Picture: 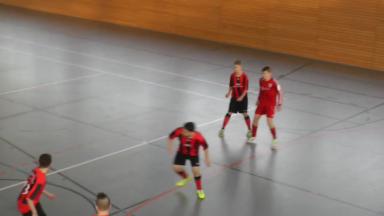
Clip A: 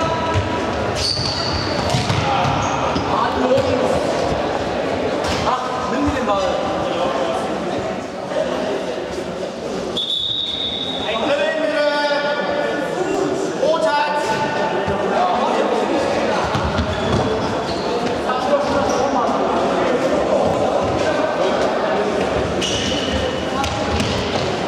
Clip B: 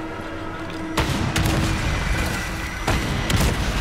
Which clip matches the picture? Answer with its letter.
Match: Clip A